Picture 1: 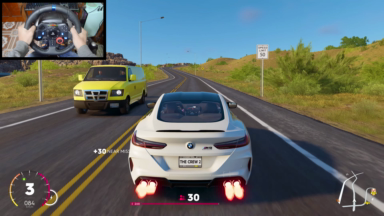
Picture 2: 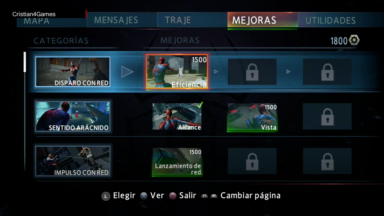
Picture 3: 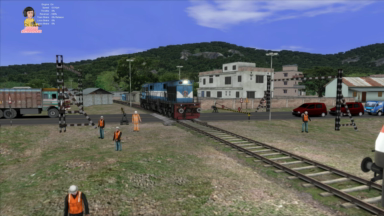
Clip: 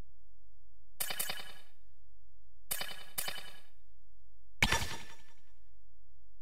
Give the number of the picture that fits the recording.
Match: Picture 2